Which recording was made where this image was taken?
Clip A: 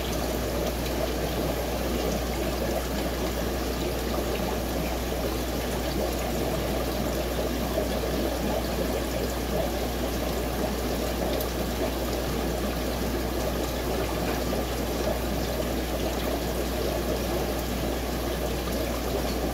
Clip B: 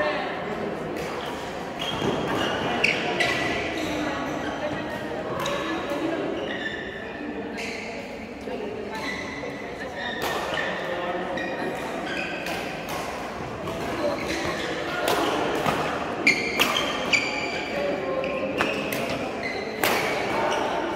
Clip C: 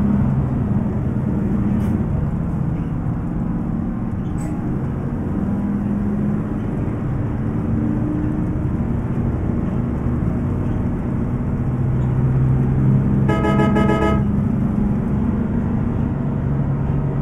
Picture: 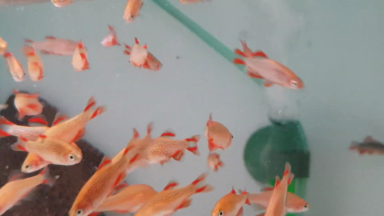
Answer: A